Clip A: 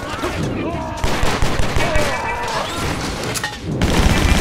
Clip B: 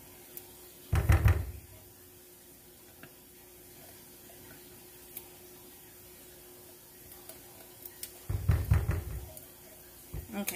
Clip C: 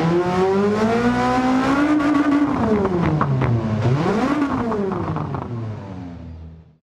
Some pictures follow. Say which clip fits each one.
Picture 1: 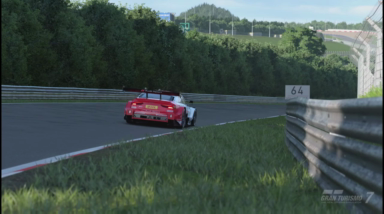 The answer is C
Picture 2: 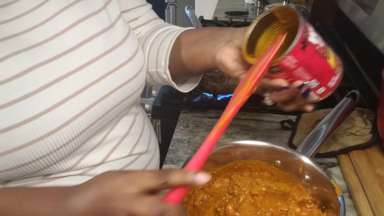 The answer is B